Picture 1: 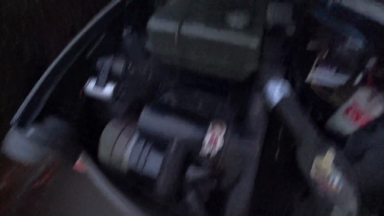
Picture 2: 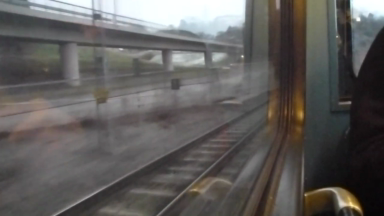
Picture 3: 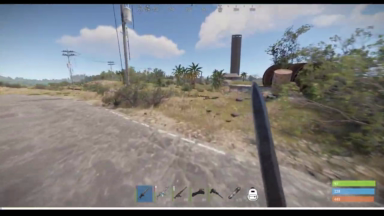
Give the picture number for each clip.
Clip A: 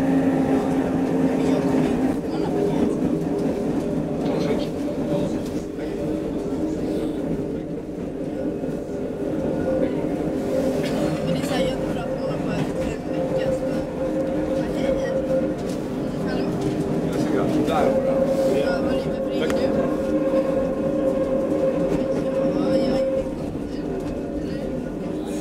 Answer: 2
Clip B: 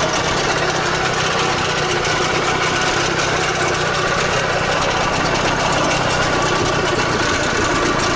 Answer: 1